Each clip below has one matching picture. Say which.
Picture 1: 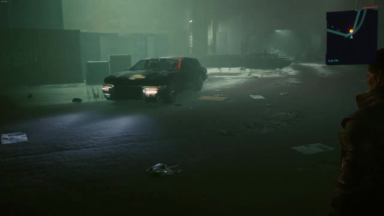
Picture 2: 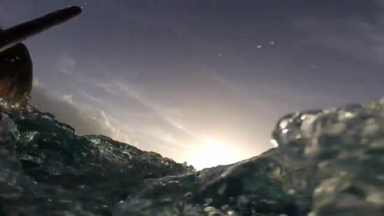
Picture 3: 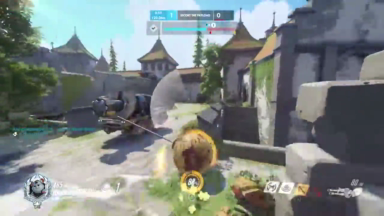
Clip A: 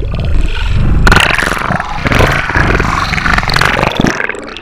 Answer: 2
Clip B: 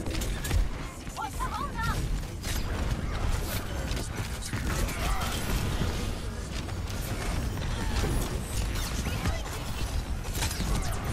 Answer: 3